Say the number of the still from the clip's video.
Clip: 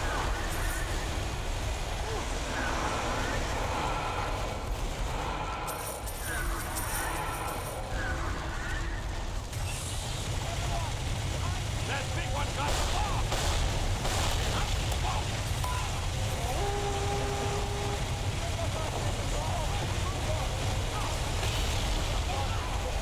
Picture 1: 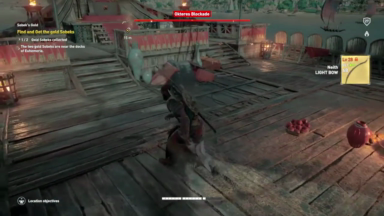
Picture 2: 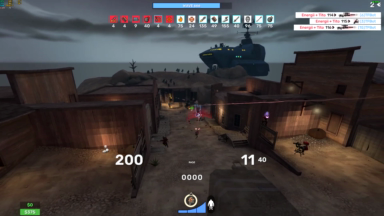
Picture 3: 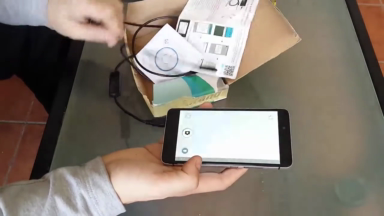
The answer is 2